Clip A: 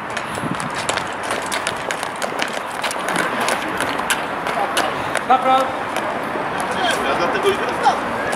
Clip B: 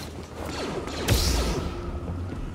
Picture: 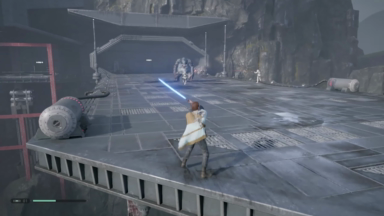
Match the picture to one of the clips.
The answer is B